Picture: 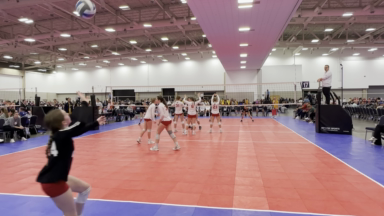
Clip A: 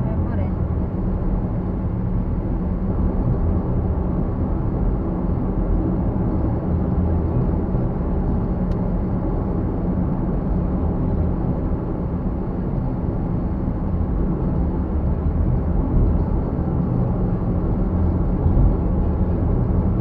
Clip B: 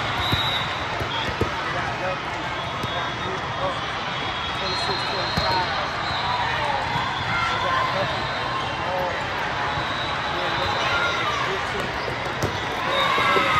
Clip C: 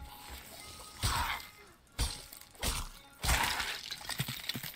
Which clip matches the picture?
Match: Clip B